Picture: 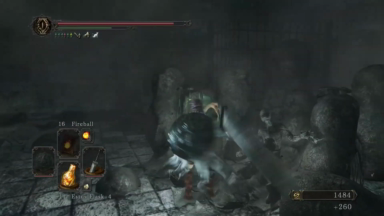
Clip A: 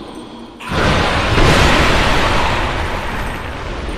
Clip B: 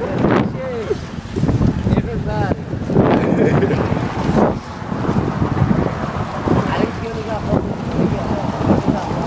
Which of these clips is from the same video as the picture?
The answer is A